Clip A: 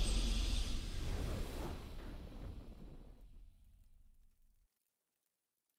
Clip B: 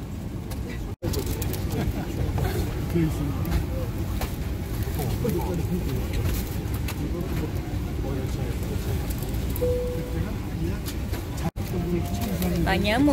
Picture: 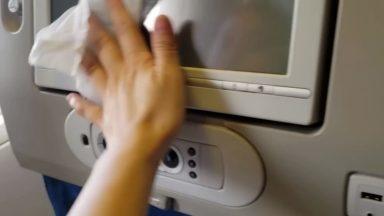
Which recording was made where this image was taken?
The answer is B